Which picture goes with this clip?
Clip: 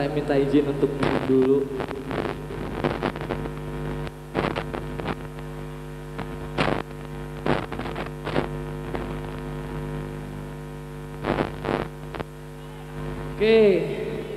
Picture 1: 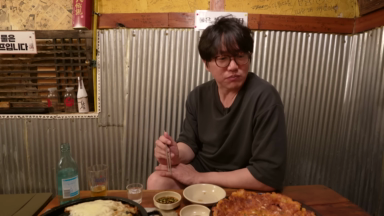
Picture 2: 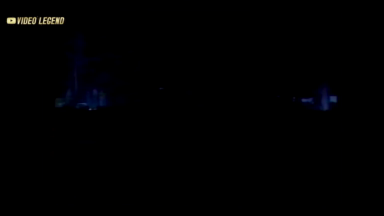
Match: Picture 2